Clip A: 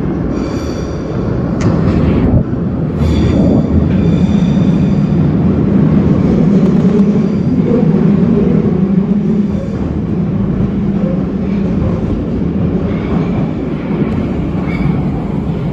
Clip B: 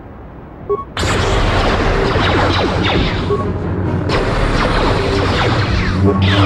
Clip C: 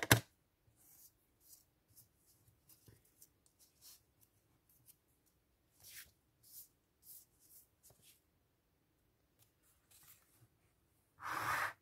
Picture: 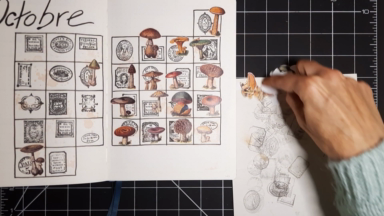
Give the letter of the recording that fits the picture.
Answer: C